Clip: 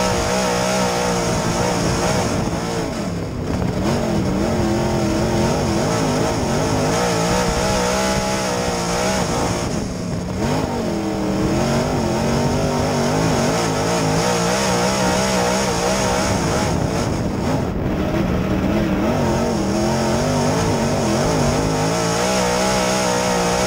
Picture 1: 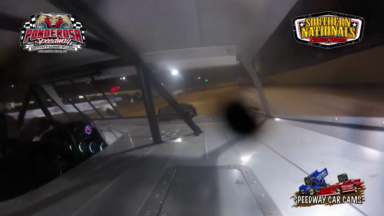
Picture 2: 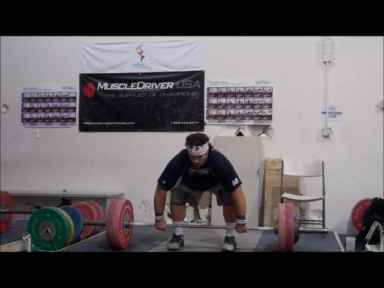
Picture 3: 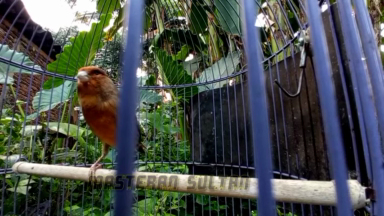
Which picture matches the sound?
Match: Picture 1